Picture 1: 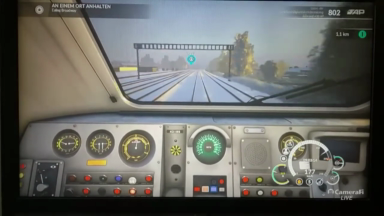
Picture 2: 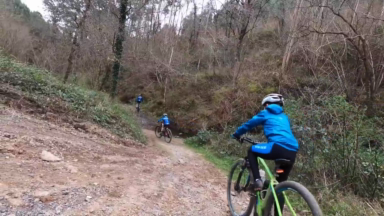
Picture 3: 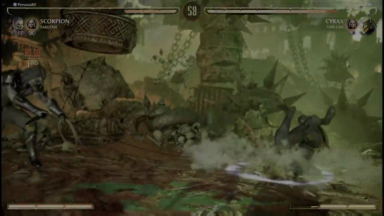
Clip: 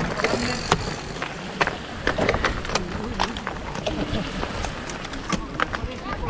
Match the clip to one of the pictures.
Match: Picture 2